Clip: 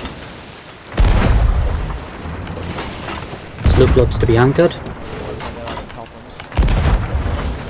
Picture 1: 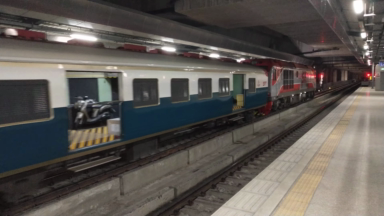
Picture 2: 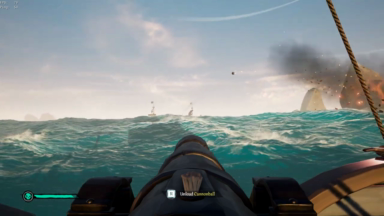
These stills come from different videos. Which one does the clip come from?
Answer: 2